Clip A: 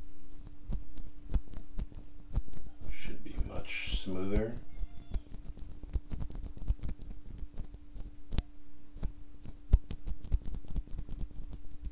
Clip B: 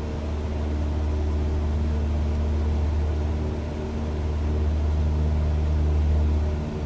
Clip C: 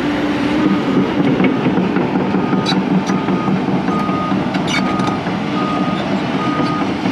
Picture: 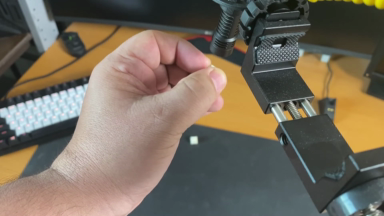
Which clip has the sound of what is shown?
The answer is A